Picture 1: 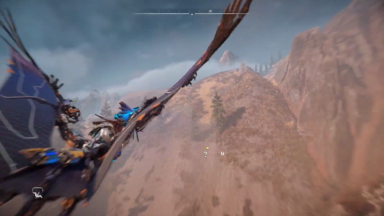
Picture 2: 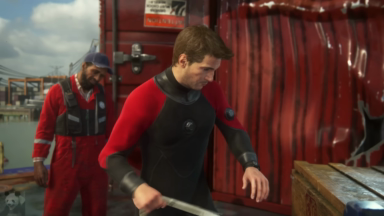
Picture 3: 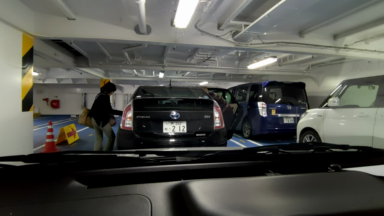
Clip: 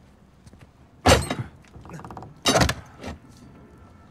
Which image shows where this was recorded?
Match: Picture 2